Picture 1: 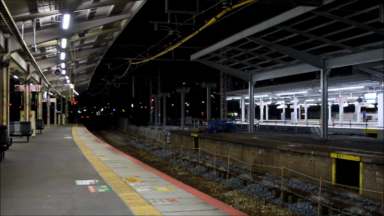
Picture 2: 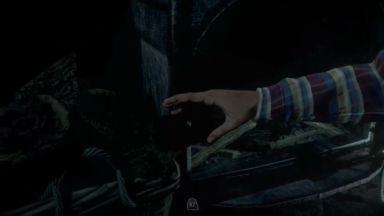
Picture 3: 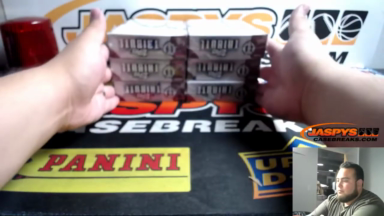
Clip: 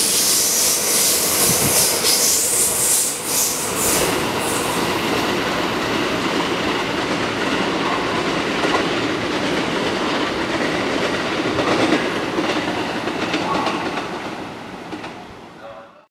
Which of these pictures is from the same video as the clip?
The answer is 1